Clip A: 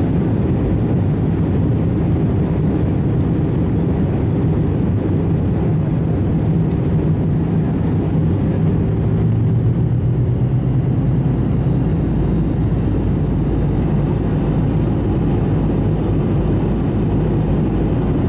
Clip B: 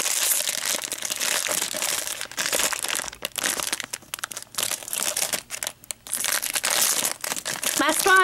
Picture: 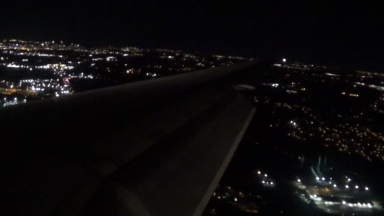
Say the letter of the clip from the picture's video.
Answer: A